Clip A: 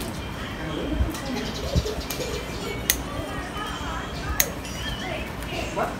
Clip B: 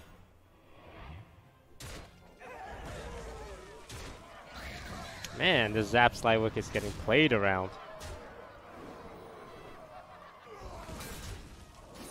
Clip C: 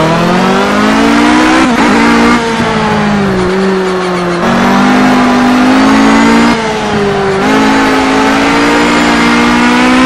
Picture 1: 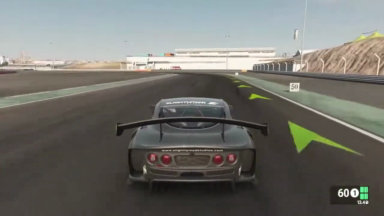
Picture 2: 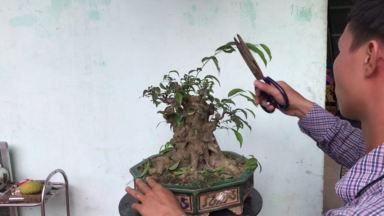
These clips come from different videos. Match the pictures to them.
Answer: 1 C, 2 A